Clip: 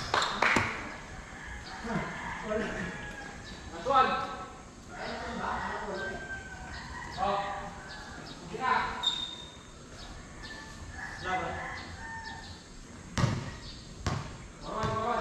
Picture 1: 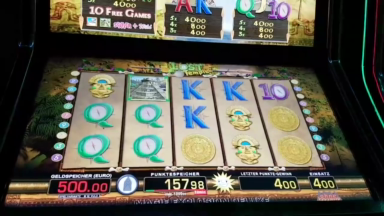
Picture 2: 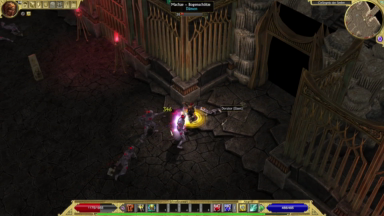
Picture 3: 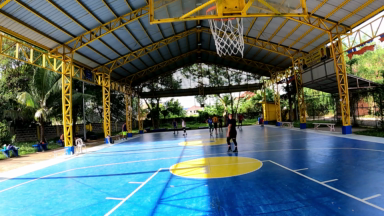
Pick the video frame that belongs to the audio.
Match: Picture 3